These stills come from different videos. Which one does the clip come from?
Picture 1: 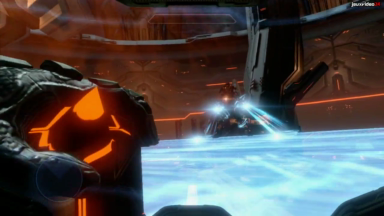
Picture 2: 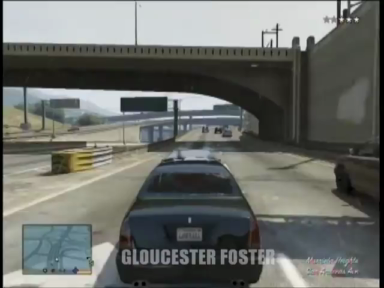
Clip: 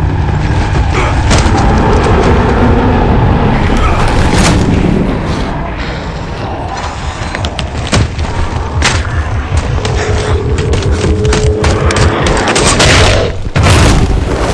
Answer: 1